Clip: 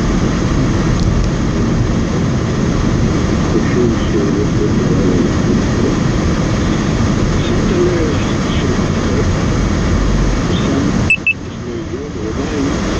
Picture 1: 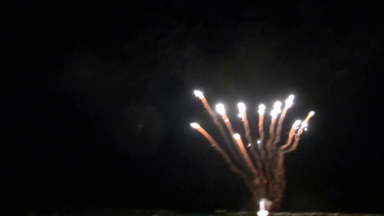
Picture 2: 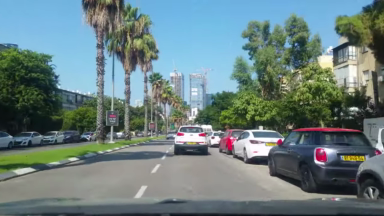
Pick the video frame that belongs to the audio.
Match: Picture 2